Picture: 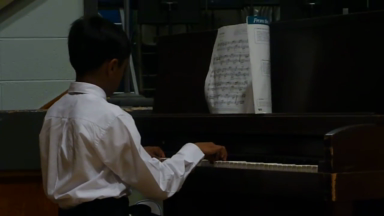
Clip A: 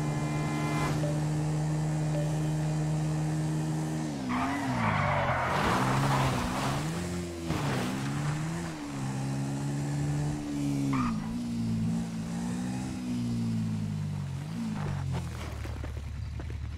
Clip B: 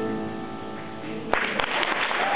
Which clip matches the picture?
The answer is B